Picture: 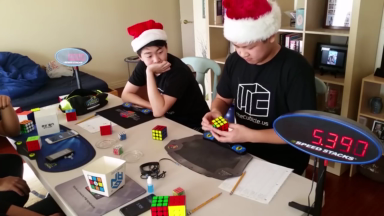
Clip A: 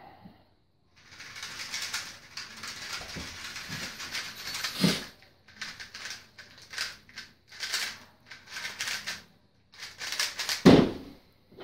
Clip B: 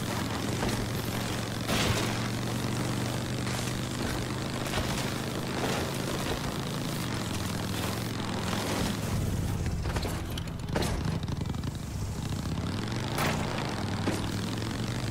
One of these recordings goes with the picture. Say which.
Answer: A